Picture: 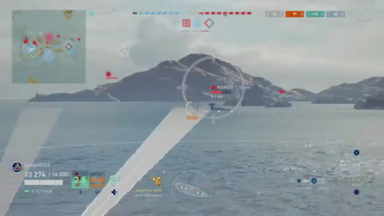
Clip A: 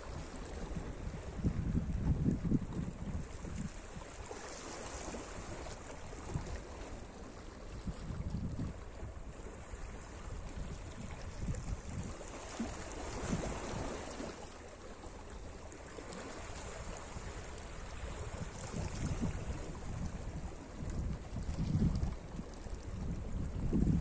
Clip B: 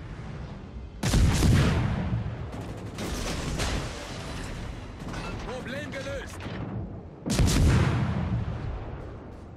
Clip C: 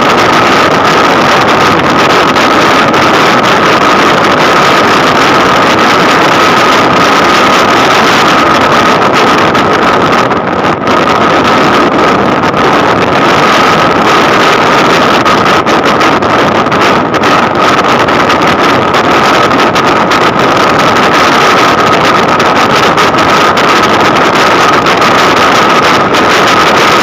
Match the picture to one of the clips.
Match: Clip B